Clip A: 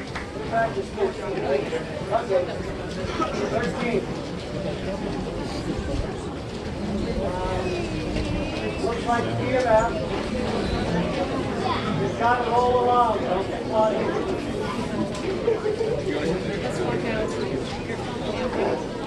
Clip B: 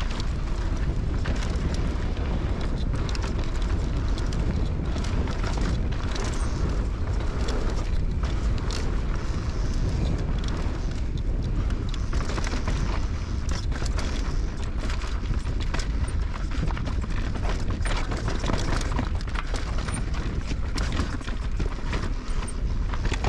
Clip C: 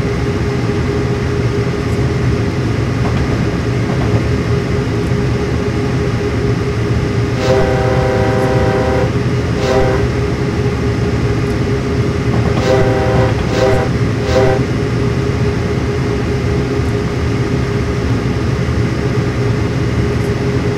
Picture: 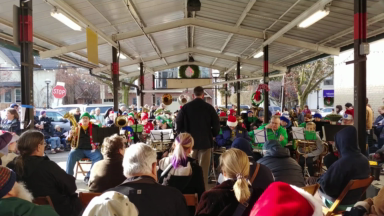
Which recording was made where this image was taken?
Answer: A